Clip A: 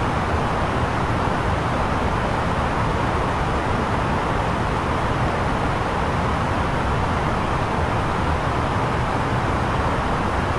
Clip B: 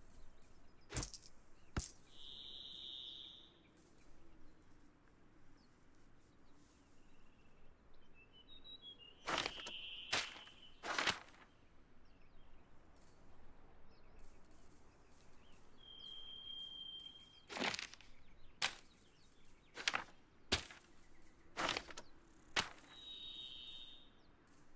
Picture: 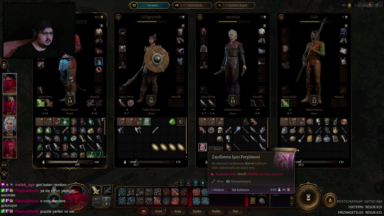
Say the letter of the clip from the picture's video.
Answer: B